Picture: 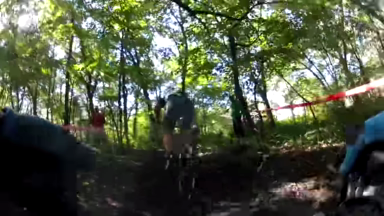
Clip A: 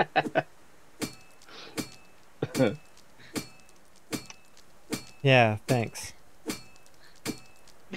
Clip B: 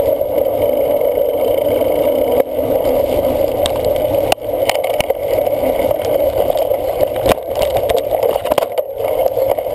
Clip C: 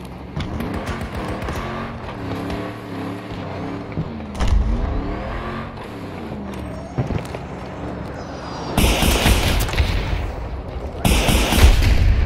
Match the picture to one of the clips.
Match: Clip B